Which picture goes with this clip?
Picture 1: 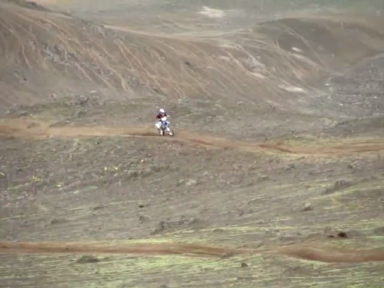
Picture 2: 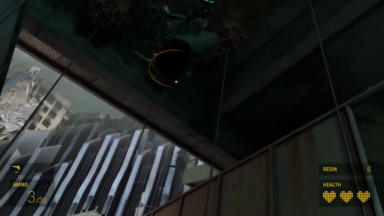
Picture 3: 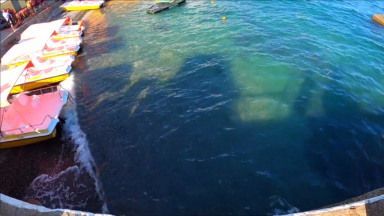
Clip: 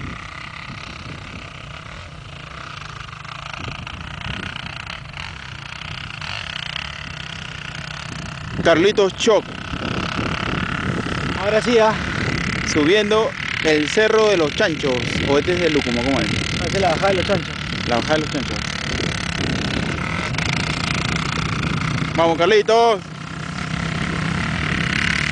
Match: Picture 1